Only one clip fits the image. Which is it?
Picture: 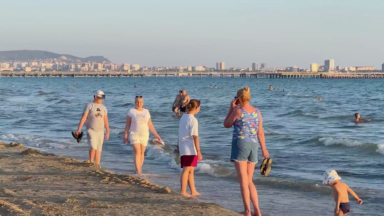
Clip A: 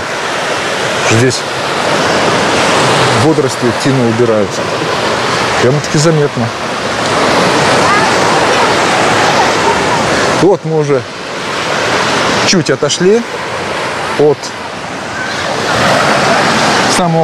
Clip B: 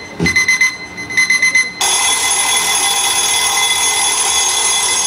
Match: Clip A